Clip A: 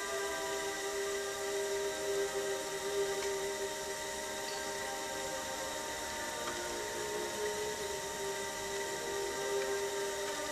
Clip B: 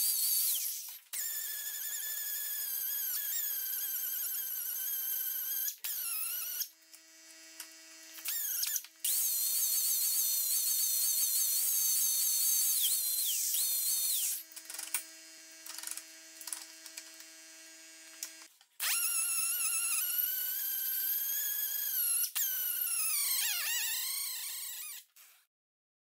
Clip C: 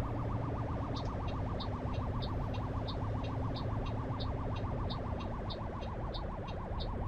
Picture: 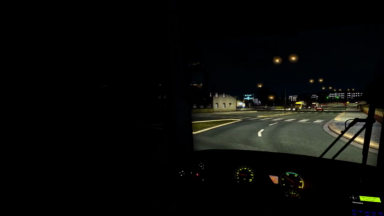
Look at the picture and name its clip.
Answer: C